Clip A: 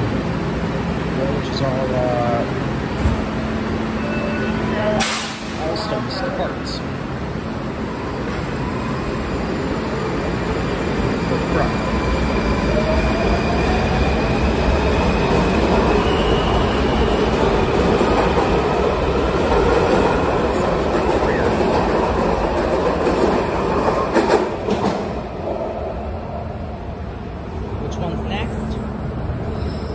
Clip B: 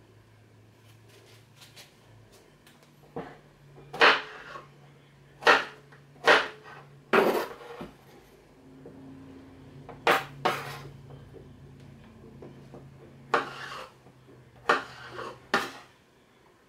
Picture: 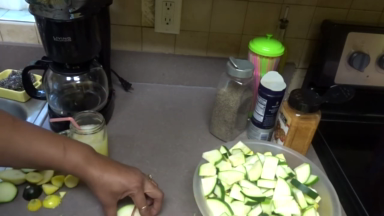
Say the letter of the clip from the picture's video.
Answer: B